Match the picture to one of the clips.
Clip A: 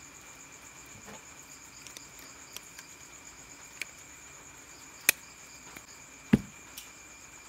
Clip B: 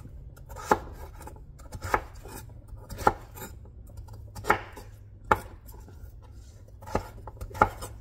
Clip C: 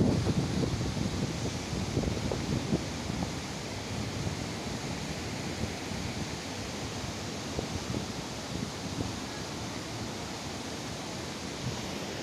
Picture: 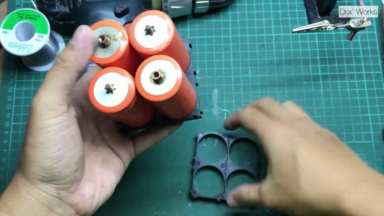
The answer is A